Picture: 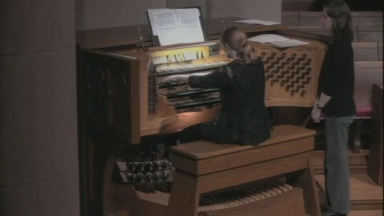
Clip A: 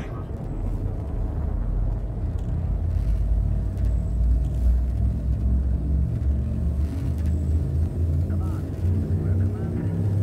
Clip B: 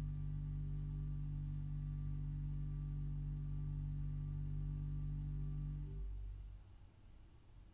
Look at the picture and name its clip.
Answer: B